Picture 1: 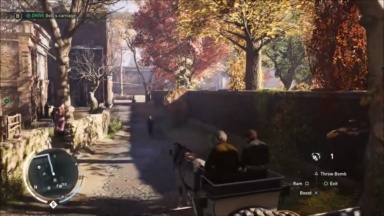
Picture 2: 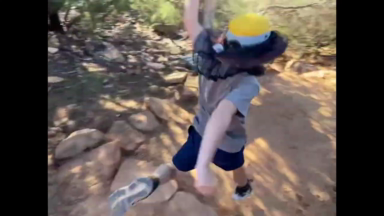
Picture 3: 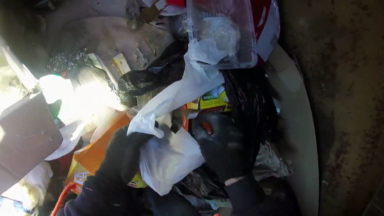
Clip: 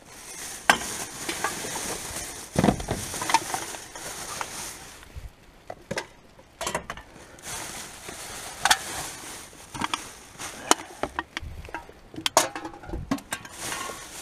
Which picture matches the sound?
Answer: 3